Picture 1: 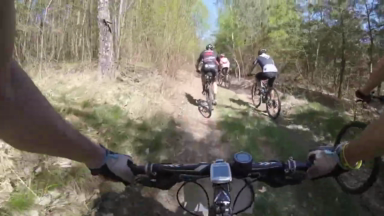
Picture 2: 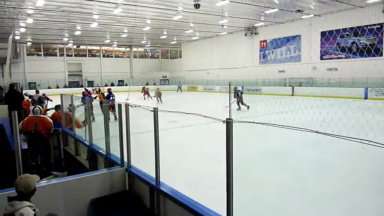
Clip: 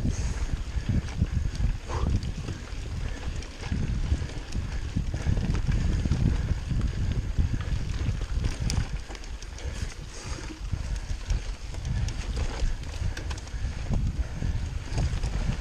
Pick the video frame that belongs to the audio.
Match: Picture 1